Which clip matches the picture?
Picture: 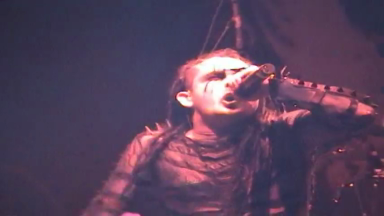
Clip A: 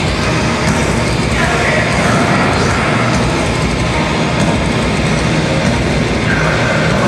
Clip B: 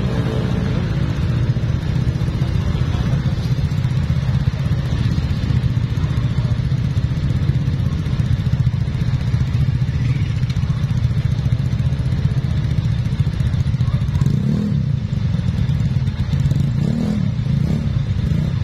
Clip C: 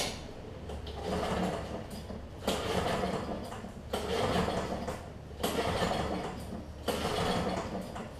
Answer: A